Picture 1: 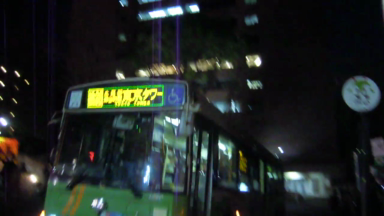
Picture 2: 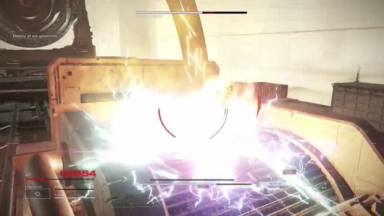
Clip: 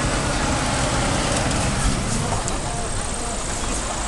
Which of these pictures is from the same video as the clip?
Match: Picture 1